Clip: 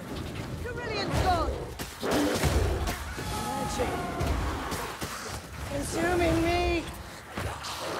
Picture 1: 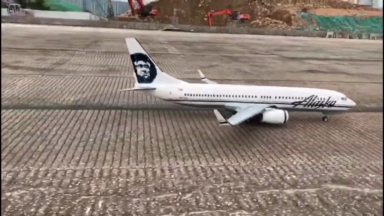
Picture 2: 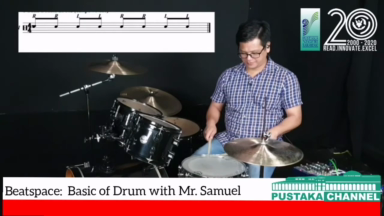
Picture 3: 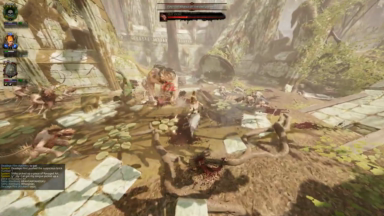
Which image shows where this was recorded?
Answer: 3